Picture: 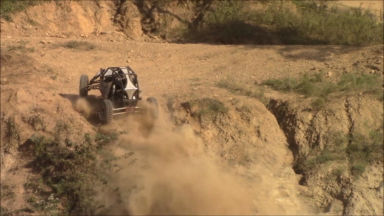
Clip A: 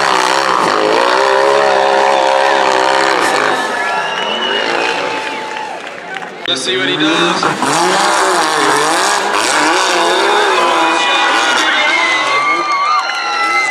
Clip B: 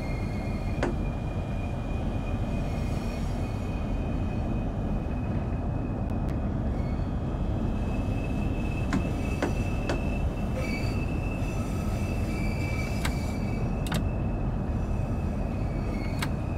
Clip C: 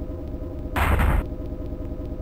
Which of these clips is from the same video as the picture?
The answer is A